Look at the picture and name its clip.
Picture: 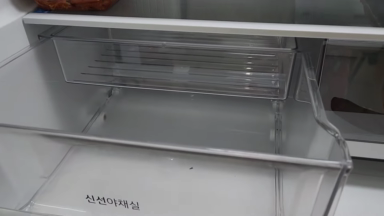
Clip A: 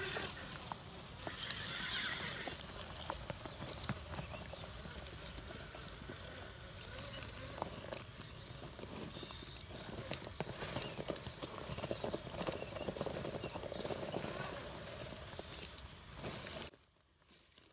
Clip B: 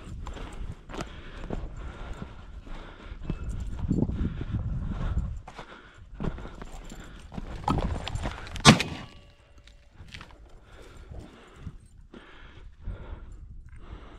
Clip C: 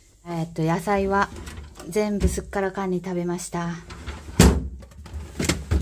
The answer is C